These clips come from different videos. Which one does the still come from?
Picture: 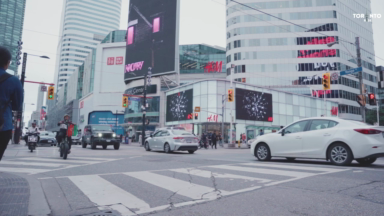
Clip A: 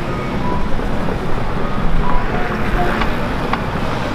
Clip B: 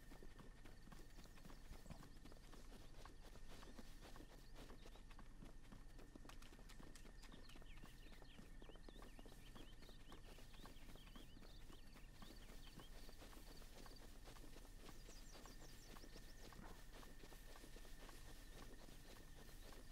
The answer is A